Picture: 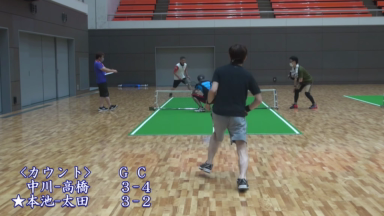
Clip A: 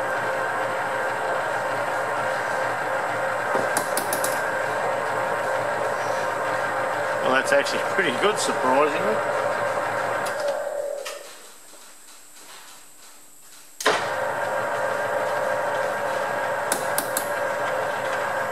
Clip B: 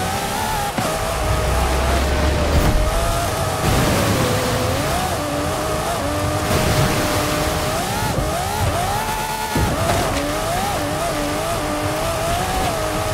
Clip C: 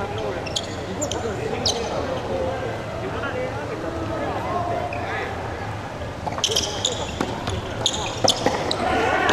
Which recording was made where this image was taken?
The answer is C